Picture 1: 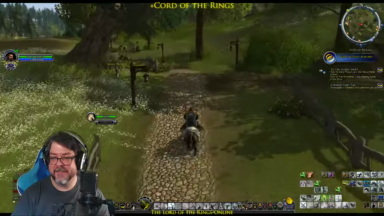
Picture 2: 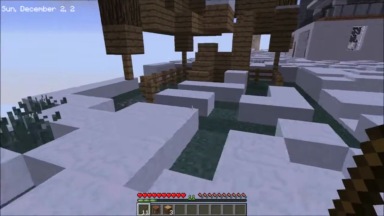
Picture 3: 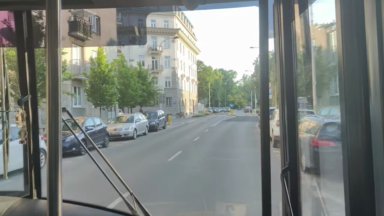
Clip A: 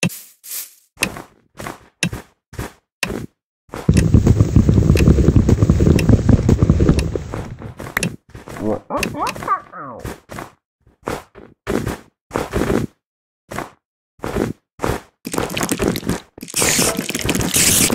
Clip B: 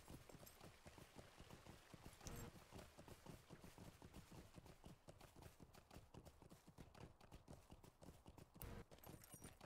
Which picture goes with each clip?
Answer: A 2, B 1